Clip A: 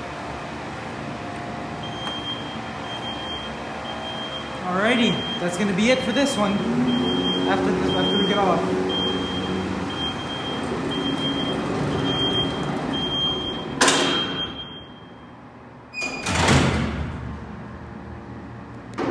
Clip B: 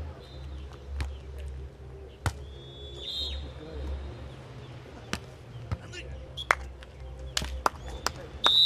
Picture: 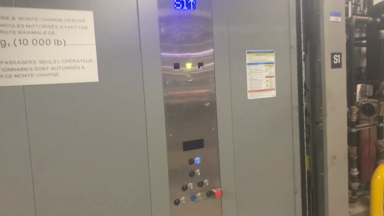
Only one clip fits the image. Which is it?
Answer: A